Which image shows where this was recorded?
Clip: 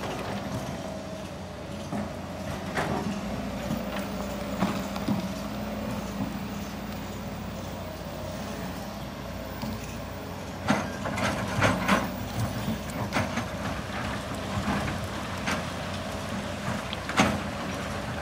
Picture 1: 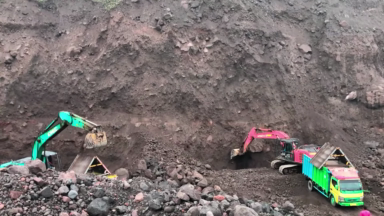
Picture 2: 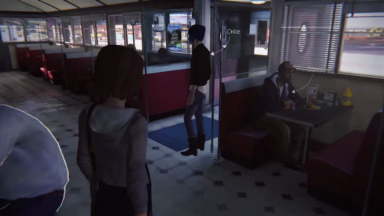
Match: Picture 1